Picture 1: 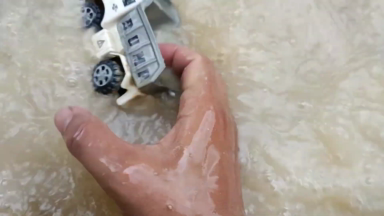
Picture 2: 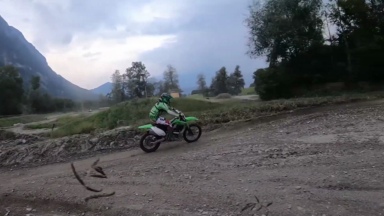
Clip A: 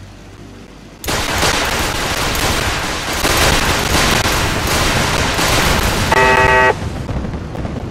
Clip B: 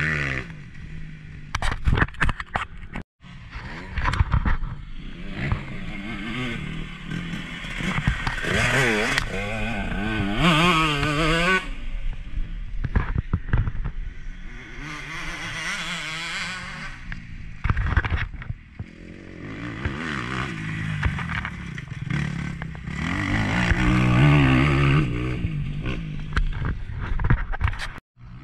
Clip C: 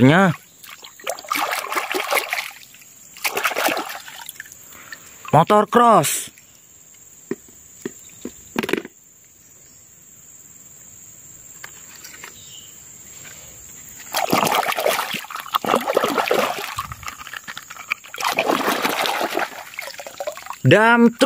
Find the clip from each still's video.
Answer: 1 C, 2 B